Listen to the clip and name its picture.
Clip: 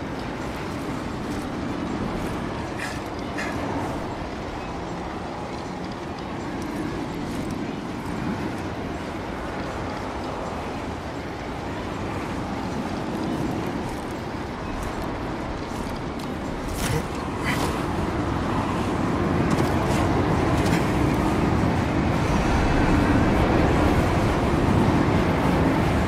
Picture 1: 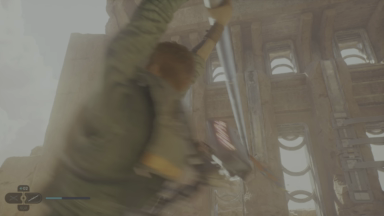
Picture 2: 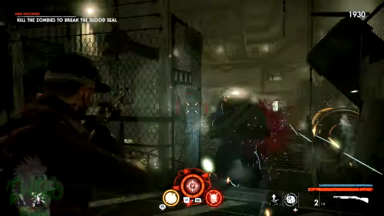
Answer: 1